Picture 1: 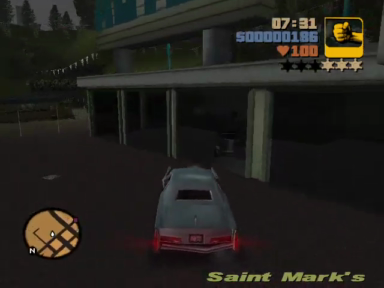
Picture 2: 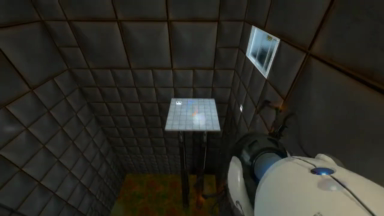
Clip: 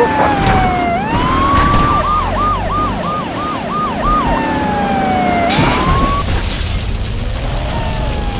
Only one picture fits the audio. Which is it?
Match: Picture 1